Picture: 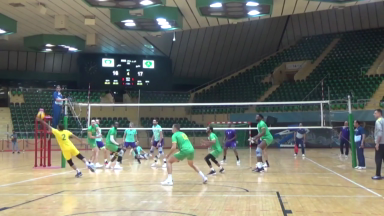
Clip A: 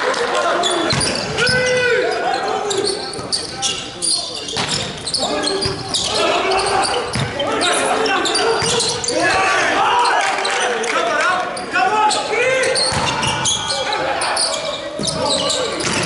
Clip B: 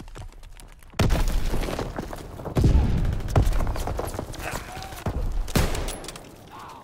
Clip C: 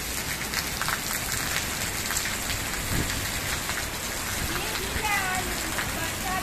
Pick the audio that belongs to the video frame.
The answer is A